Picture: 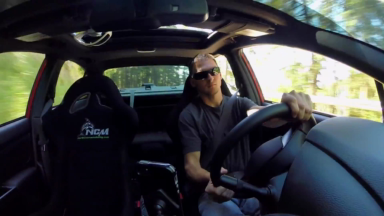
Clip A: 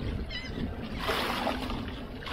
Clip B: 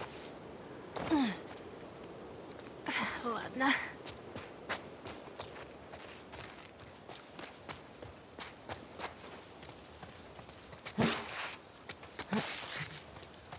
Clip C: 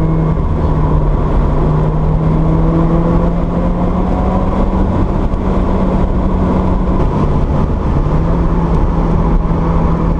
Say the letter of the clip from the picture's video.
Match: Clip C